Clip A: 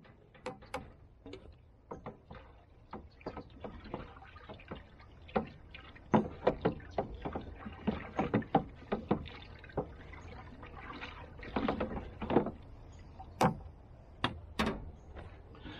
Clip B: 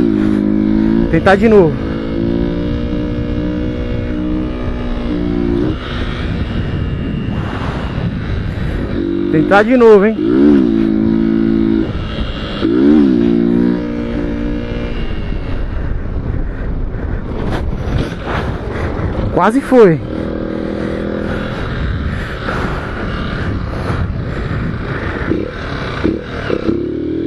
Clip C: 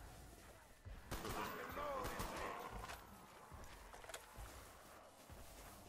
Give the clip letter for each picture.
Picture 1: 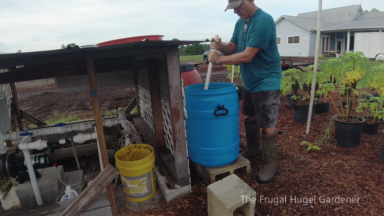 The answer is A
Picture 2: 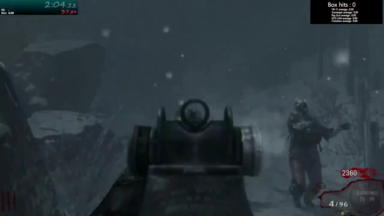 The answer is C